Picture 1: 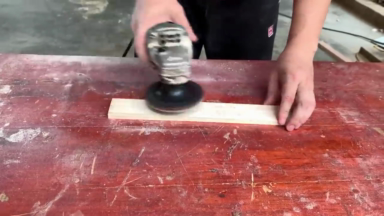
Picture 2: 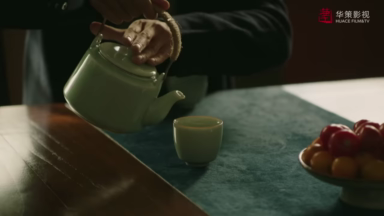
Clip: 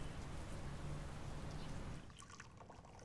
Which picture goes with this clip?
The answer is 2